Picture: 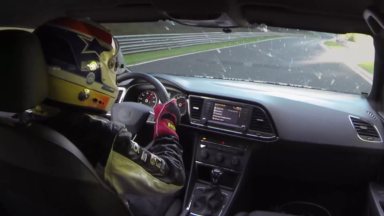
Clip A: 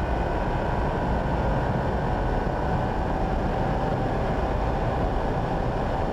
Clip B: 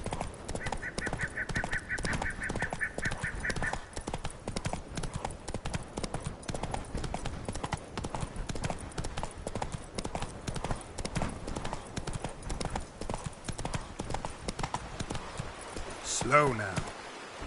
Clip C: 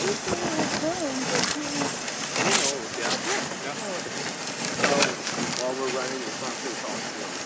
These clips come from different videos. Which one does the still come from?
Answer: A